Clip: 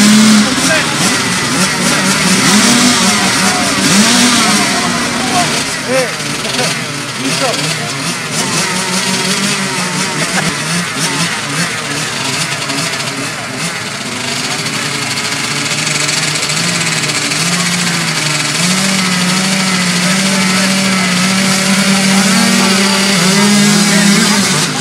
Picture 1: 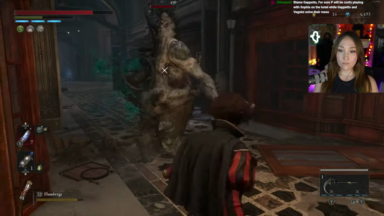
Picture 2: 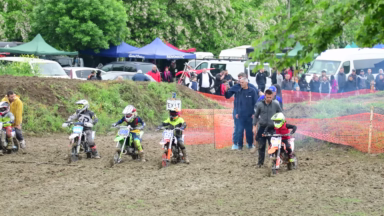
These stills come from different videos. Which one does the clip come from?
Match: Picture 2